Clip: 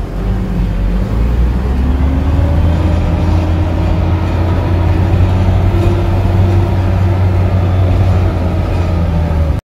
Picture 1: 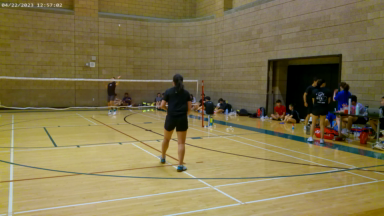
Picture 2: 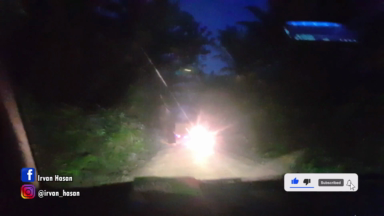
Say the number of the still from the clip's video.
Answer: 2